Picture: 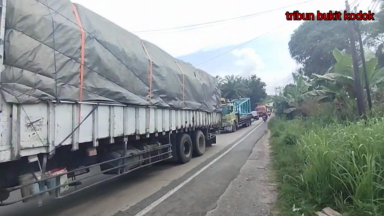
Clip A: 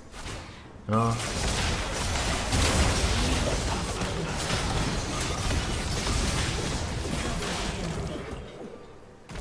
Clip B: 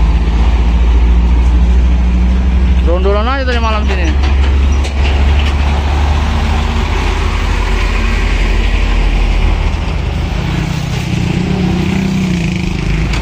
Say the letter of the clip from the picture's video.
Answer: B